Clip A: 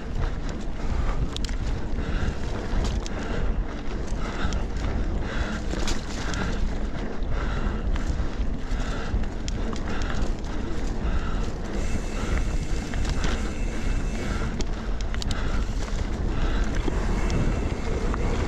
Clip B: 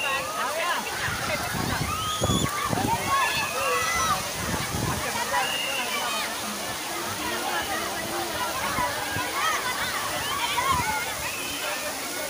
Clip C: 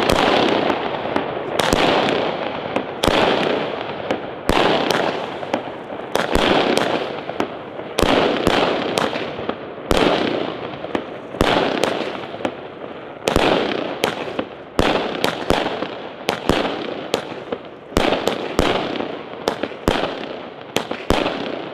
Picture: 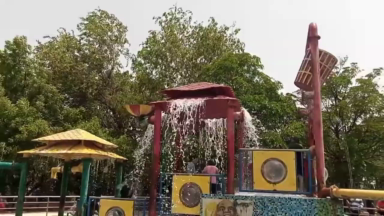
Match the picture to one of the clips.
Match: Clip B